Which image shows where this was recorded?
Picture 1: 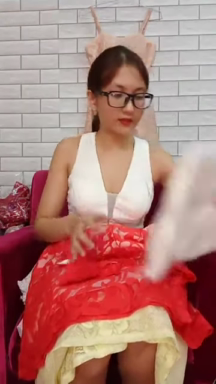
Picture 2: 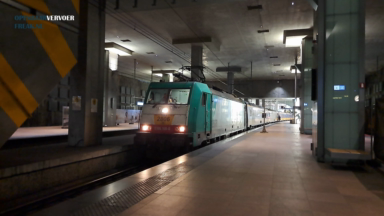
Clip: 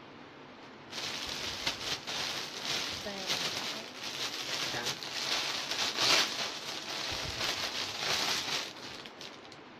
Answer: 1